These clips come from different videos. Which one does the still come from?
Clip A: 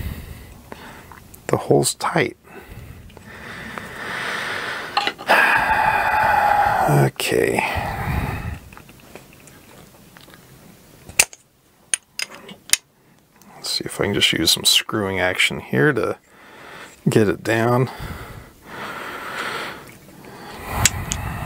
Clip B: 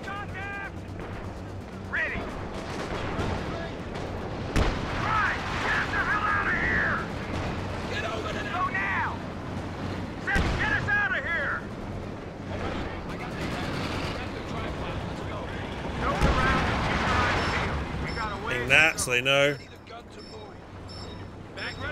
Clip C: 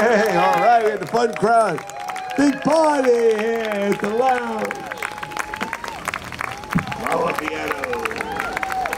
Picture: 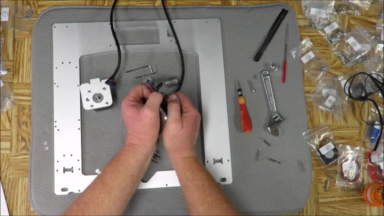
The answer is A